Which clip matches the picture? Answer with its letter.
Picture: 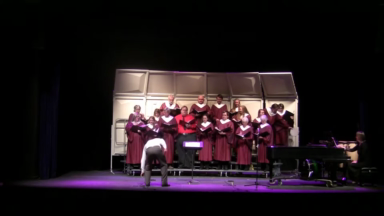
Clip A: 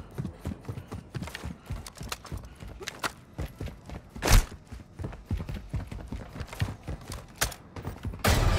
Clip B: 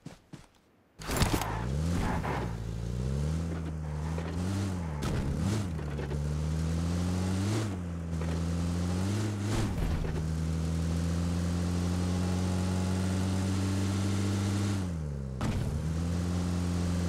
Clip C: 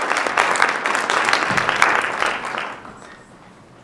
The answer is C